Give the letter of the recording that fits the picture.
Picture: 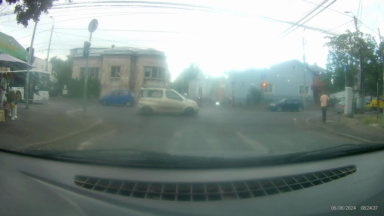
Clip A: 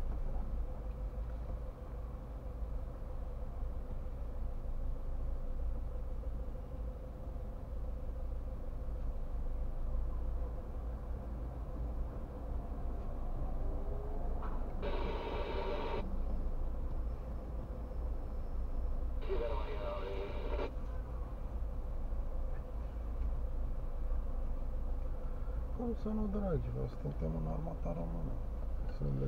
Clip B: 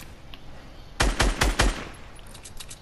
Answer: A